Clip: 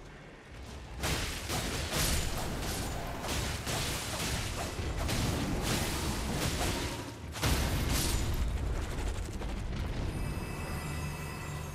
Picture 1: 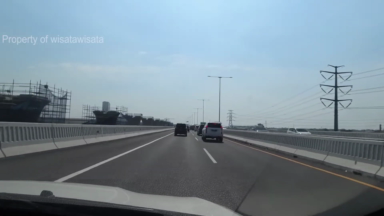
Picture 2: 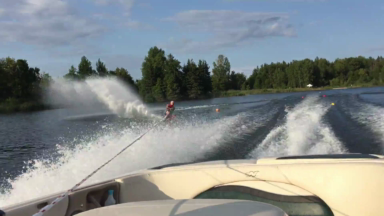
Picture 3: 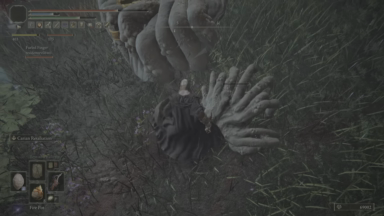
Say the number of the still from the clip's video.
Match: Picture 3